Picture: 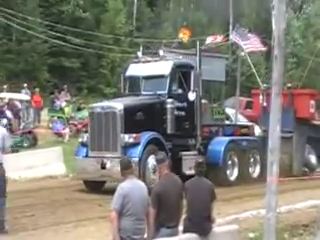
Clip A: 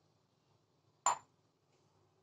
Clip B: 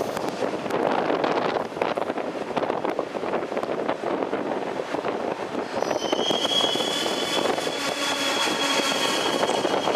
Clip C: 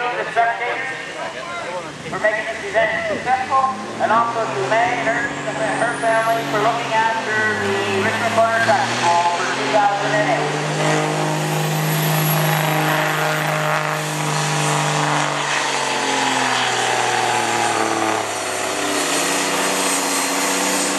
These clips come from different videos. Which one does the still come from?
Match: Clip C